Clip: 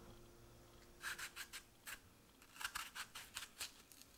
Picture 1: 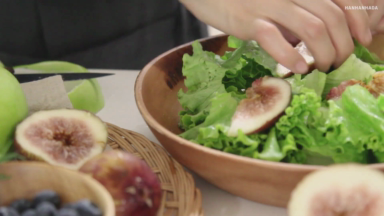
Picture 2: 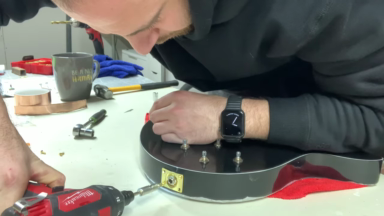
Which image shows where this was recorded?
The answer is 1